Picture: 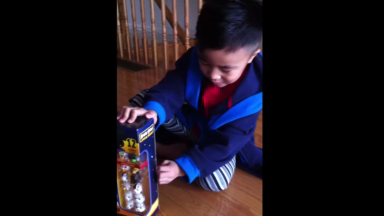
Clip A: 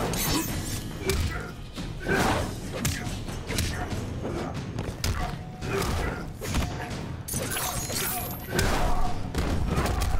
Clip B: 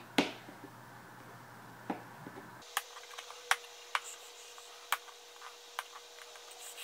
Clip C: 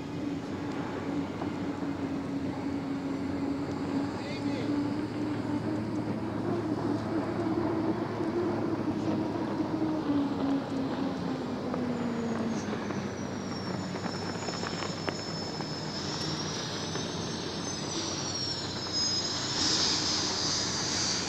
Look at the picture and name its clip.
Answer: B